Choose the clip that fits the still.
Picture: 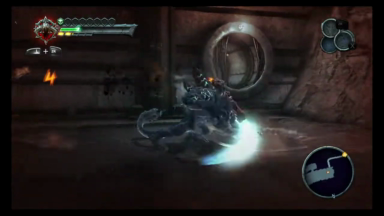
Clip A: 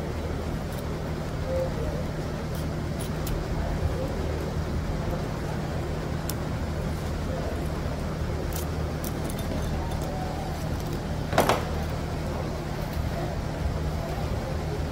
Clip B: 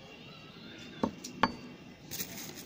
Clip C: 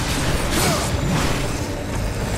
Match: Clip C